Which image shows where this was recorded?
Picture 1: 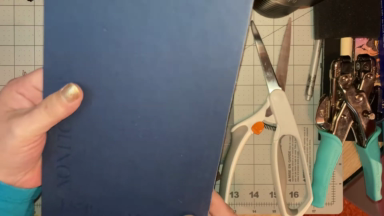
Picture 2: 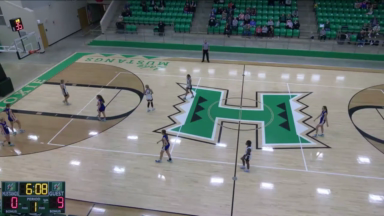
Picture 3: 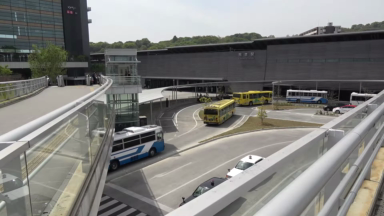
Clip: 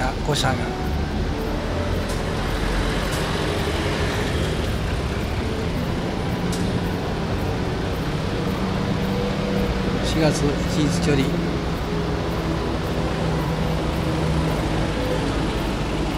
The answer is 3